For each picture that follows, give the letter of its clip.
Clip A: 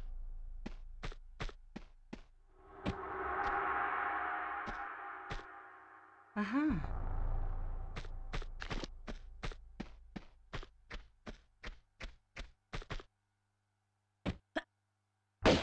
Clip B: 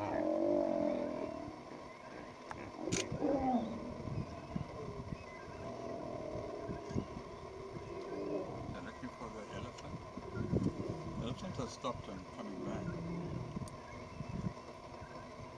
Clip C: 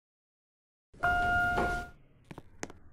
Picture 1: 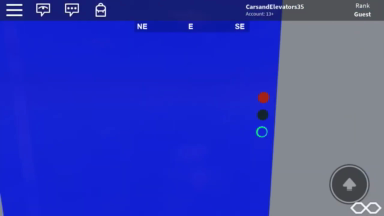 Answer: C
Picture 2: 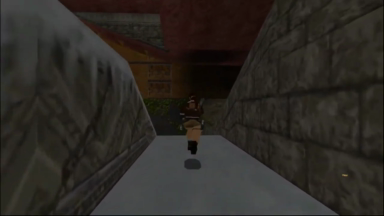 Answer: A